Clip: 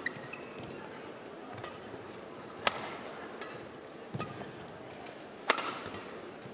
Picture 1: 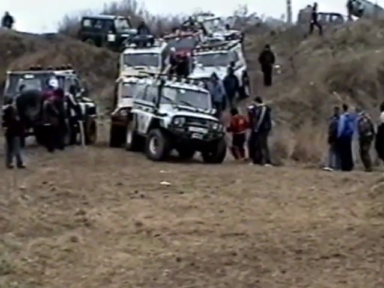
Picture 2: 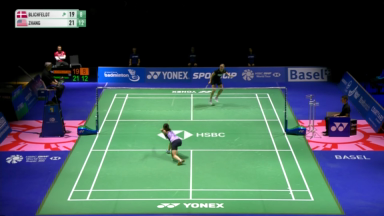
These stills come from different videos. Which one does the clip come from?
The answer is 2